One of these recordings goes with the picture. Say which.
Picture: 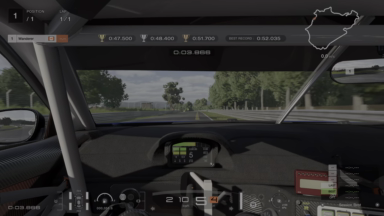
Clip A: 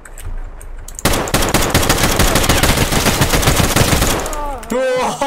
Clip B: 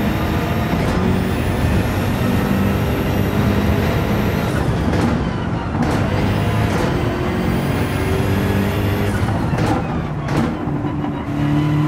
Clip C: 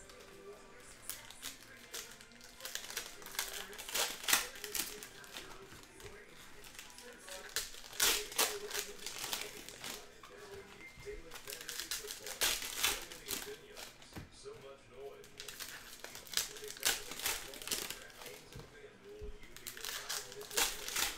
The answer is B